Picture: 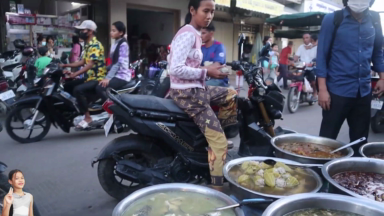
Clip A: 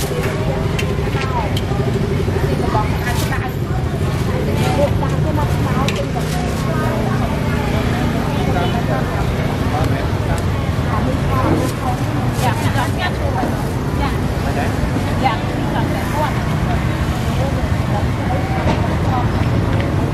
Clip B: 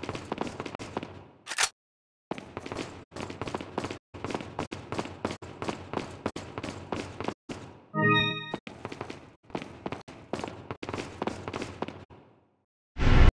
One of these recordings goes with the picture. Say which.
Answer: A